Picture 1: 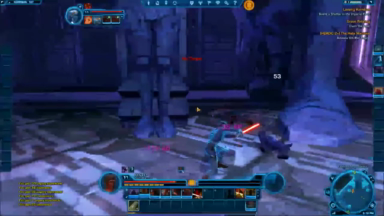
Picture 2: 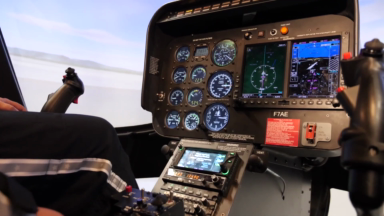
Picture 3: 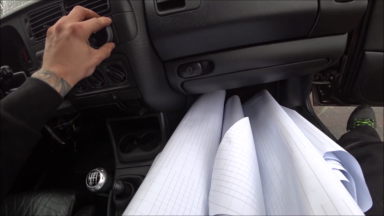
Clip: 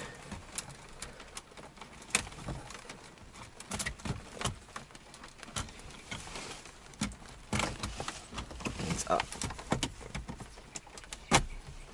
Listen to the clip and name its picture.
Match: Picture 3